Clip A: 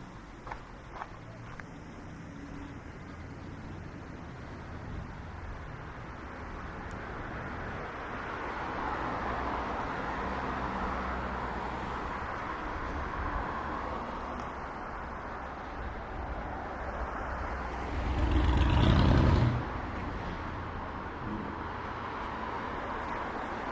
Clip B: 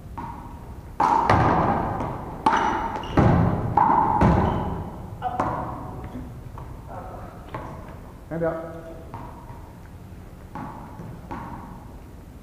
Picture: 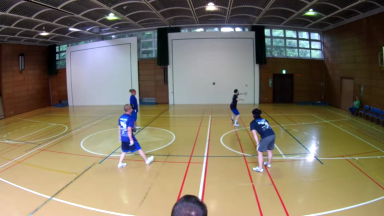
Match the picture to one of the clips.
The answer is B